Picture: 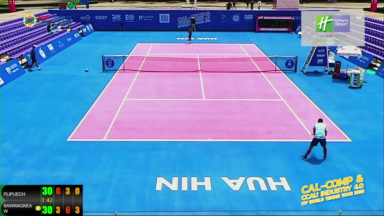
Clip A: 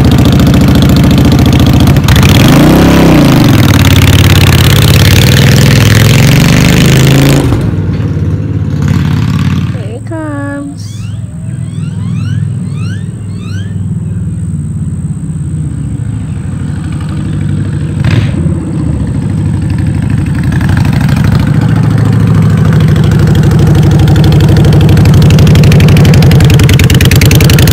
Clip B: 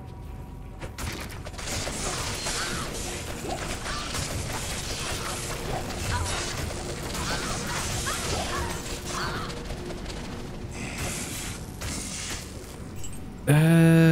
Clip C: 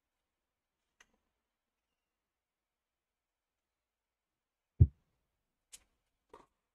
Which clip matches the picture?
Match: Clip C